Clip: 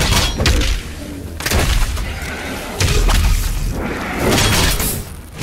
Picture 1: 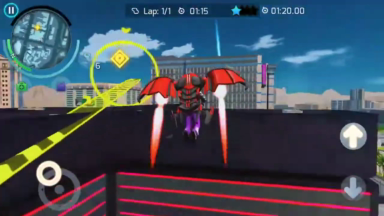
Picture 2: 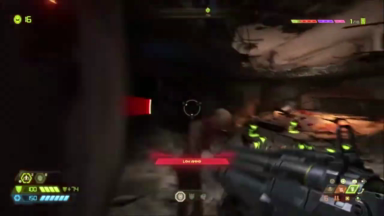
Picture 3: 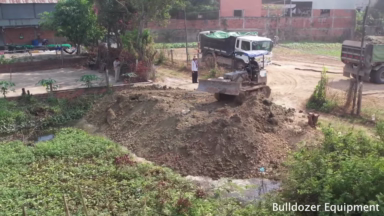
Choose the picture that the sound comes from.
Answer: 2